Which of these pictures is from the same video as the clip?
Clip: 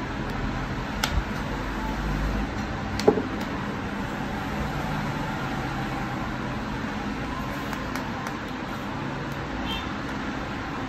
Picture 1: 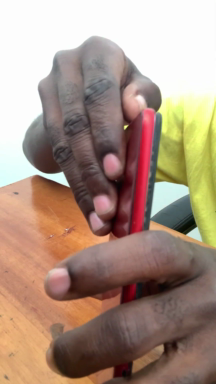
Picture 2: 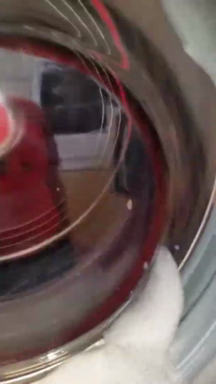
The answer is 1